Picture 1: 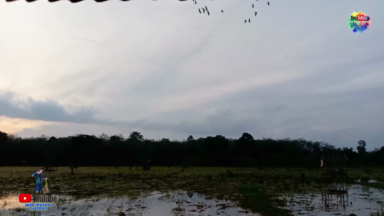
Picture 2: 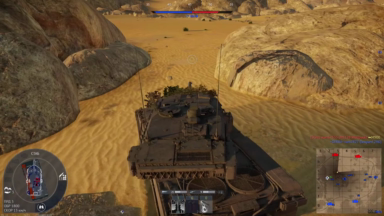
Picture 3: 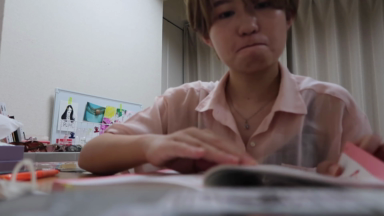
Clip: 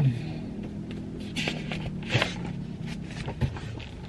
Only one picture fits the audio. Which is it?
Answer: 3